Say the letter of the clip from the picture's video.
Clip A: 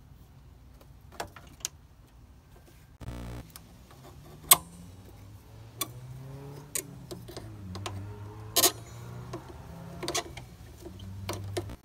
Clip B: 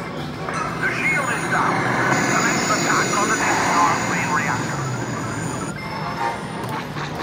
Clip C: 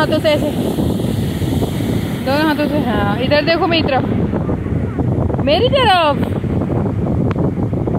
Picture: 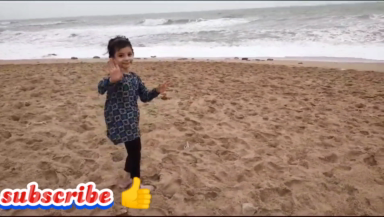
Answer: C